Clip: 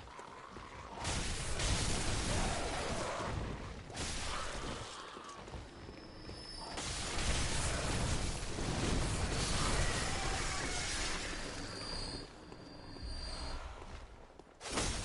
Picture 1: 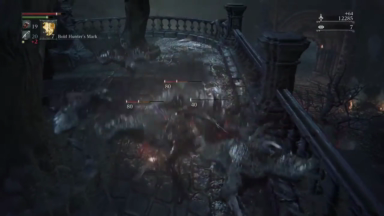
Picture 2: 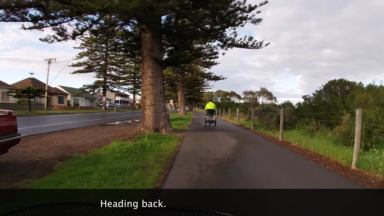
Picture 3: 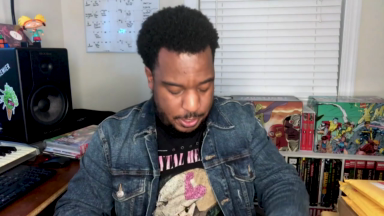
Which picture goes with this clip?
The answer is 1